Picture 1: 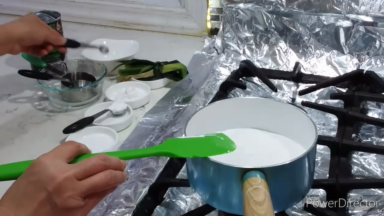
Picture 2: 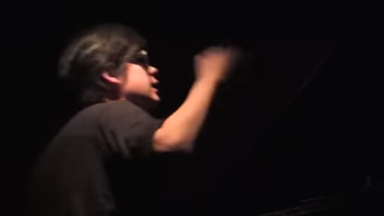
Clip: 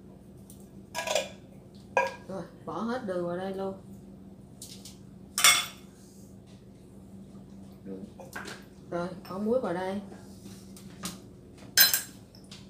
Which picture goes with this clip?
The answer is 1